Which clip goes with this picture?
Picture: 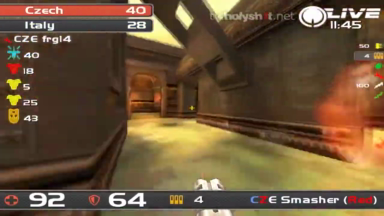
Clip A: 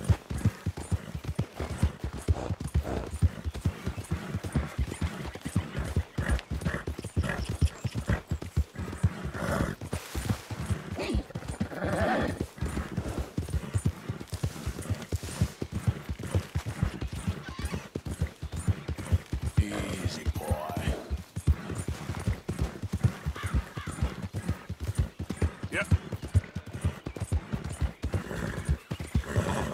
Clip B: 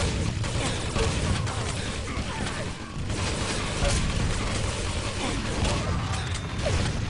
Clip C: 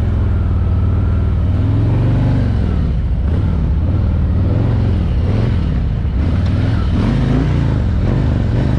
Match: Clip B